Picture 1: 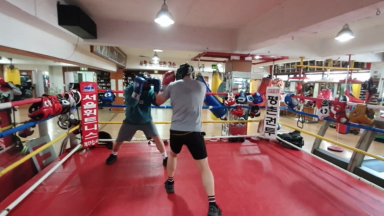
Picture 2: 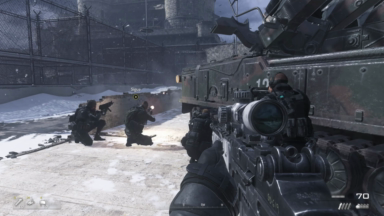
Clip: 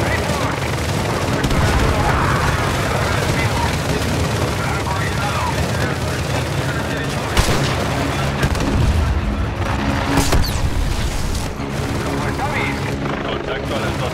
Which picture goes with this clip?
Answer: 2